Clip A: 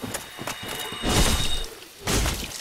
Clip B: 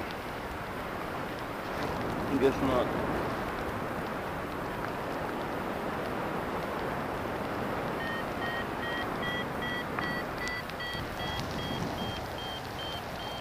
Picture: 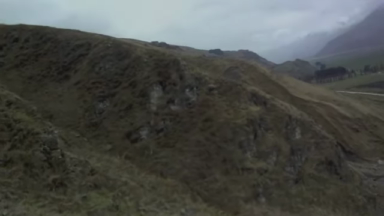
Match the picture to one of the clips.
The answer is B